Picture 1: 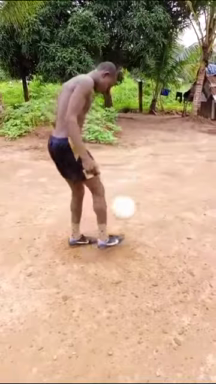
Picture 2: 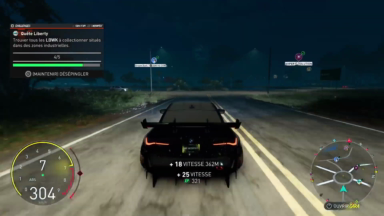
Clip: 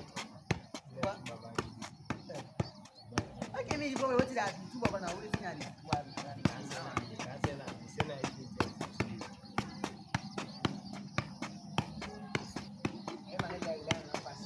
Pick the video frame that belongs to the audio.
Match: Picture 1